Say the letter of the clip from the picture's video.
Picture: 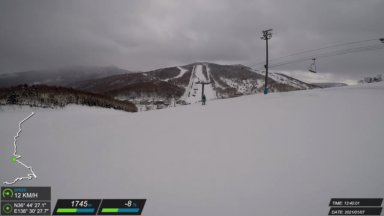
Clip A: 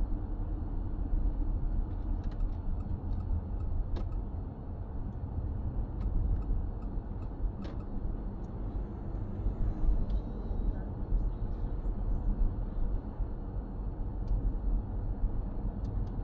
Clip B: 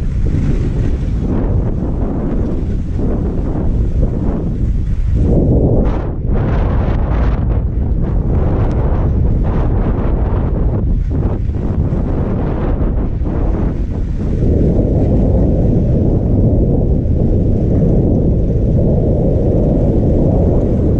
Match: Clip B